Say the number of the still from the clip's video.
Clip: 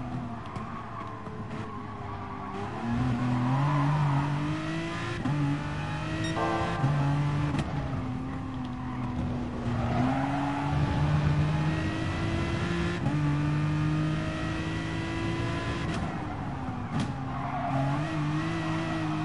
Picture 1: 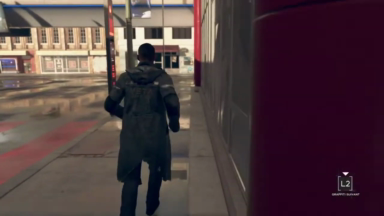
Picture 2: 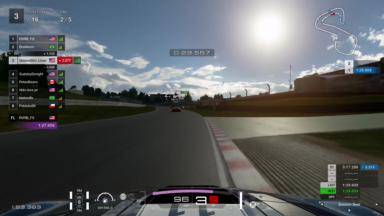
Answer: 2